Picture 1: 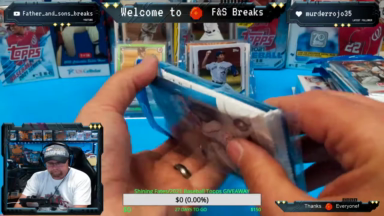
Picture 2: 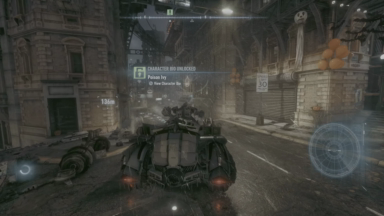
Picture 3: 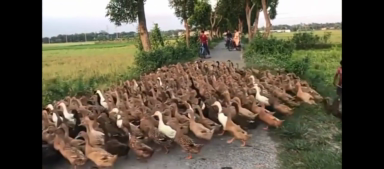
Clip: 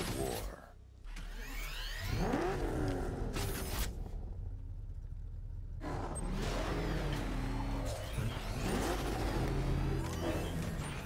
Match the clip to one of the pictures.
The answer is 2